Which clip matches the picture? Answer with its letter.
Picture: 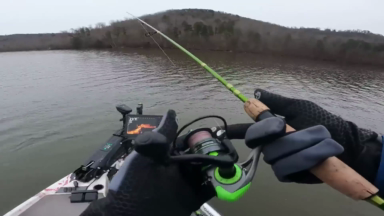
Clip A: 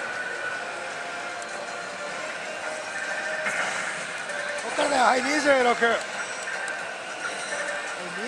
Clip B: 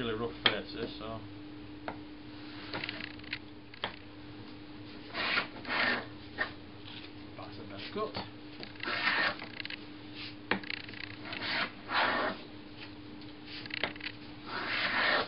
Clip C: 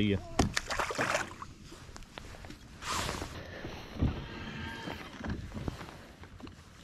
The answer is C